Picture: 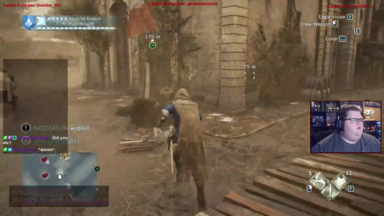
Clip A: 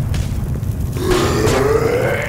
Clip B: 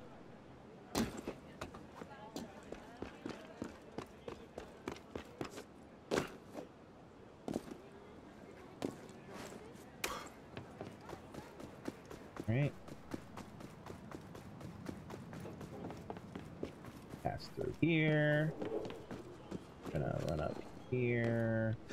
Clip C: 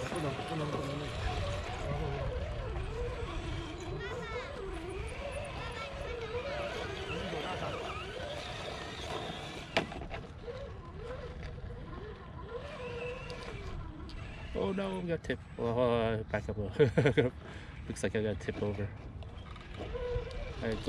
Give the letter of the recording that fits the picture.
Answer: B